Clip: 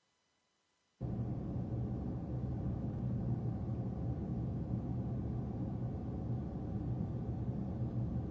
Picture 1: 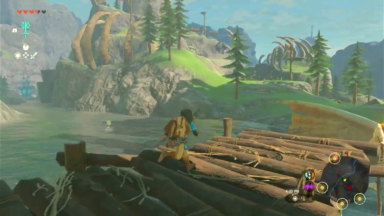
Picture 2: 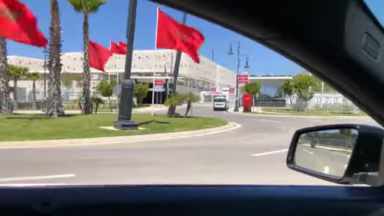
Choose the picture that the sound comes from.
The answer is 2